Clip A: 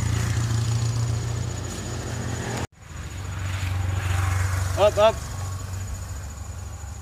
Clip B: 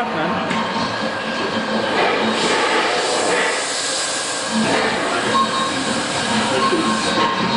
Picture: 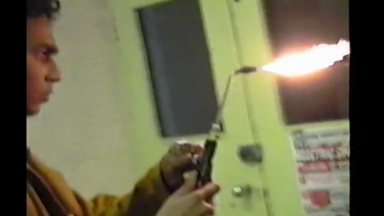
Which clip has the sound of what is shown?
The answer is B